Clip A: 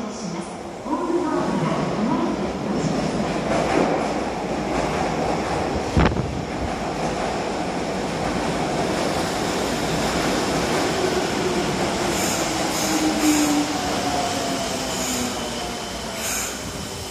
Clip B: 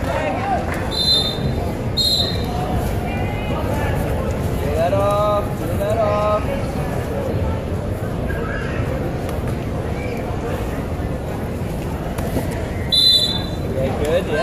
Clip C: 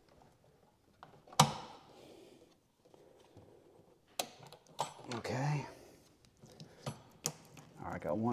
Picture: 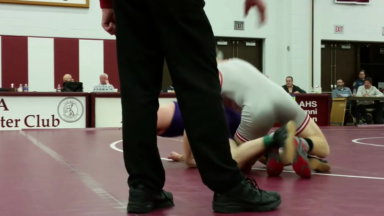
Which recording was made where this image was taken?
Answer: B